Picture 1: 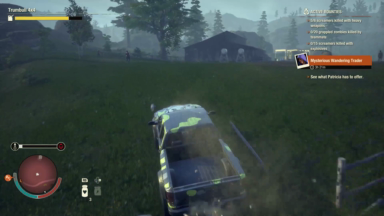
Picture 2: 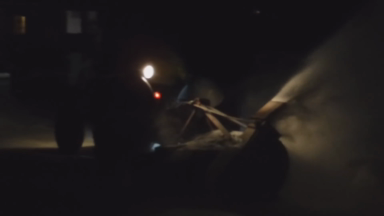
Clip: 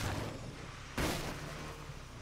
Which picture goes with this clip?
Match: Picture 1